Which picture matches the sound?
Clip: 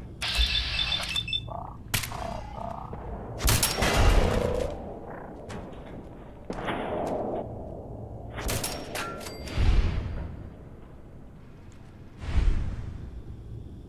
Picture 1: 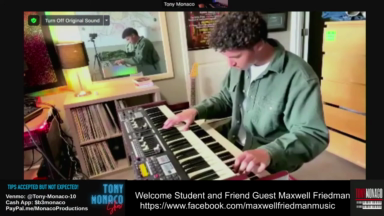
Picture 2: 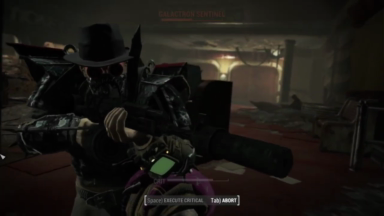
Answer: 2